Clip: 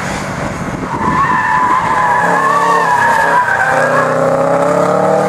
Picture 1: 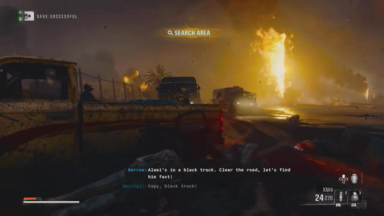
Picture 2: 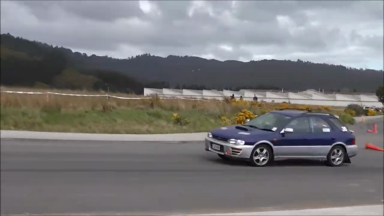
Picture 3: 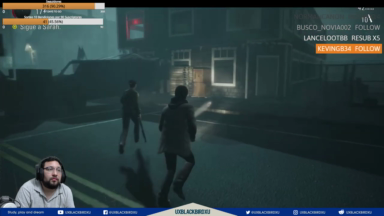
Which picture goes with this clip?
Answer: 2